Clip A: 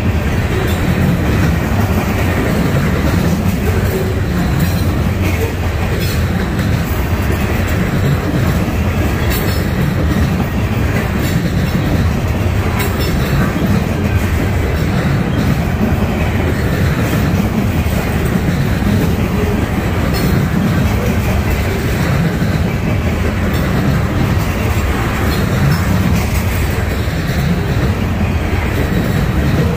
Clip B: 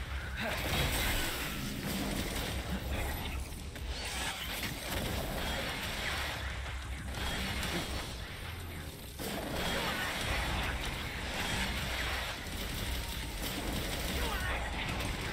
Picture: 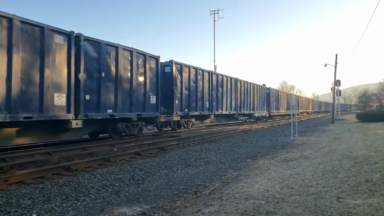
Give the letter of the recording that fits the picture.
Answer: A